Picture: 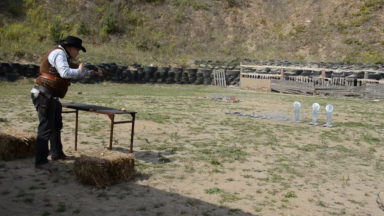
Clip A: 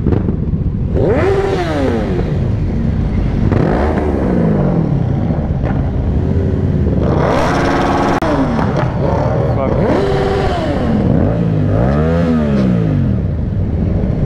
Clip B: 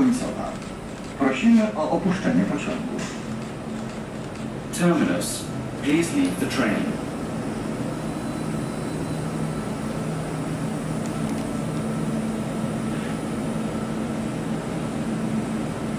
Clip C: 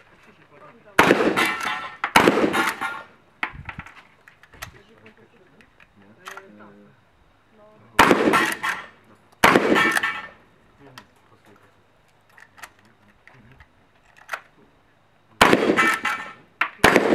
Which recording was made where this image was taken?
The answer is C